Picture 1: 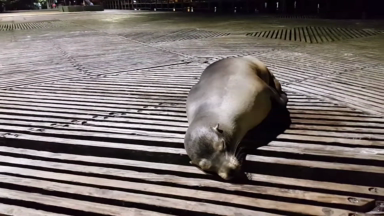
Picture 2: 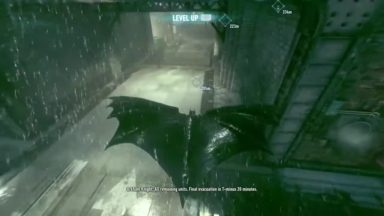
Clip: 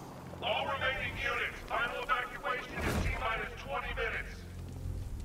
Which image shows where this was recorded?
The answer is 2